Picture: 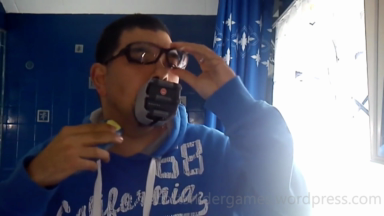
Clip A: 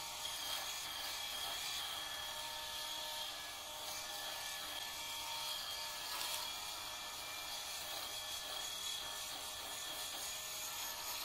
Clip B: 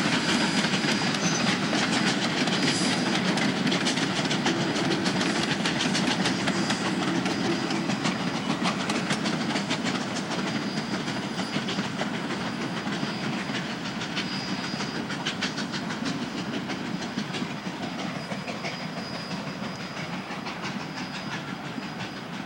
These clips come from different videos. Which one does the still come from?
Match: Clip A